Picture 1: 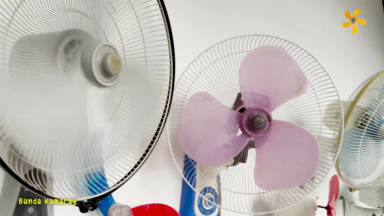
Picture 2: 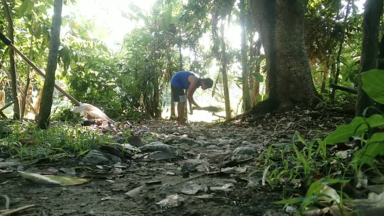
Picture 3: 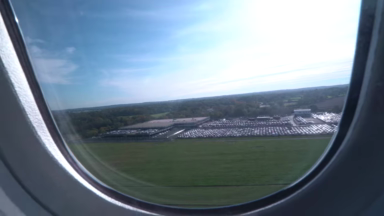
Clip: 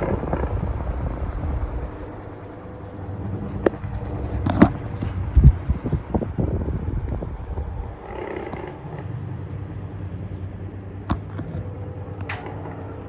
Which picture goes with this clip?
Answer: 1